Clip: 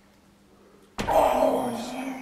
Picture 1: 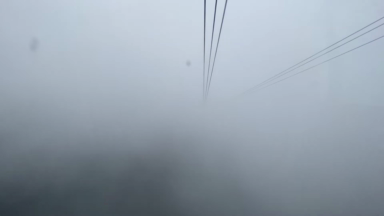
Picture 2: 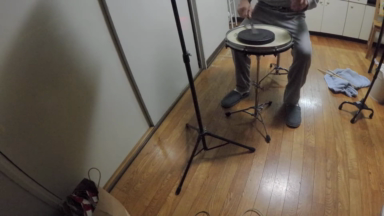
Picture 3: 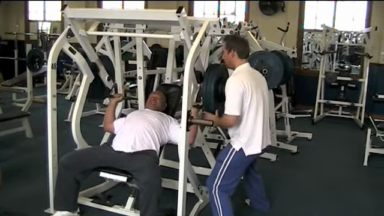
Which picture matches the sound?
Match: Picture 3